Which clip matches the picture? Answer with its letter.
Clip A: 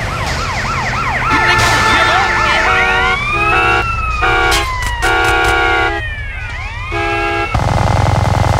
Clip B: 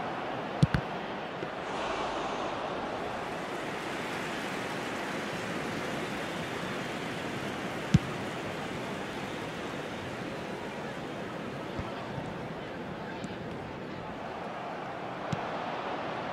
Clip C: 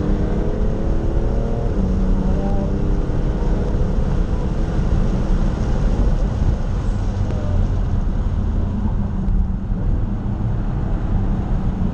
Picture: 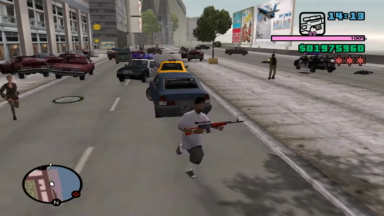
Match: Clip A